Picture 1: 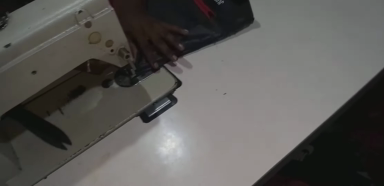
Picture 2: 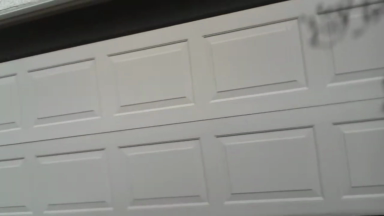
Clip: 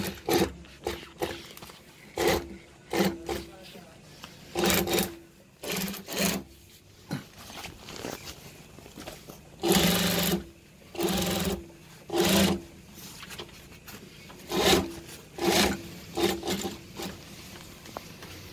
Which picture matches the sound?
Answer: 1